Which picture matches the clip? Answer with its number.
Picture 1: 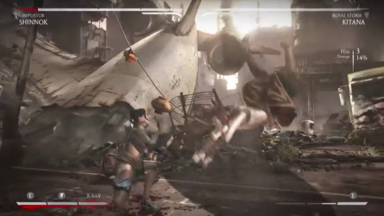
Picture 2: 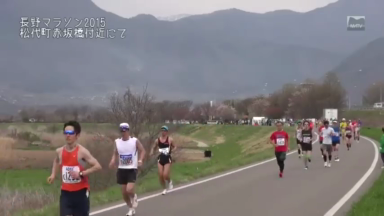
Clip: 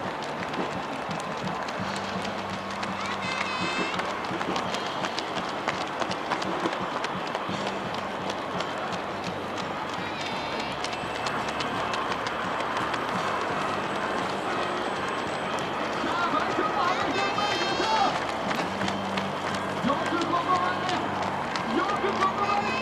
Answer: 2